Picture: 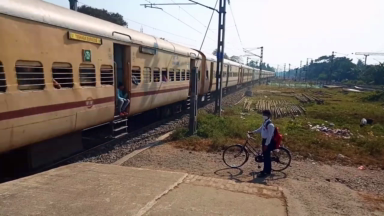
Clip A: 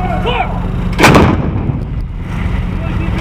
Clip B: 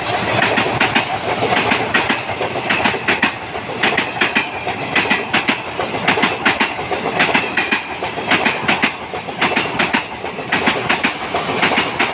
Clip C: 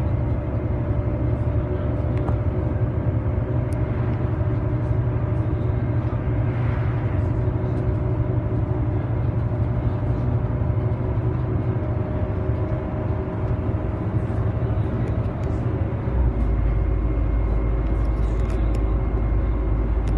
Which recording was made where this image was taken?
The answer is B